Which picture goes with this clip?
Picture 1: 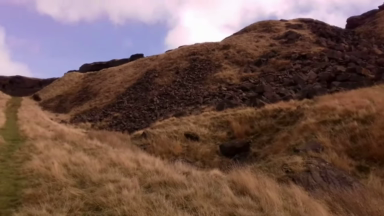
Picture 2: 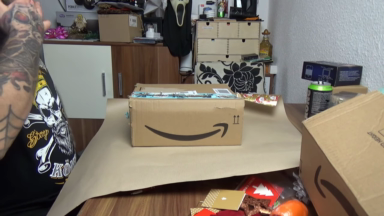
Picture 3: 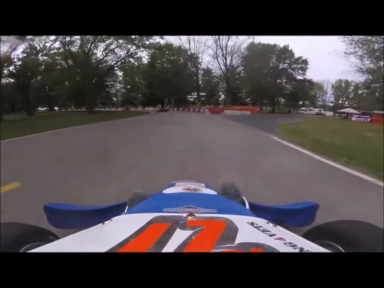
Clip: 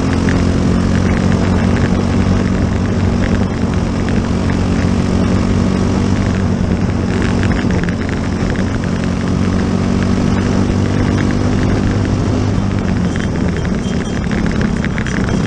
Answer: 3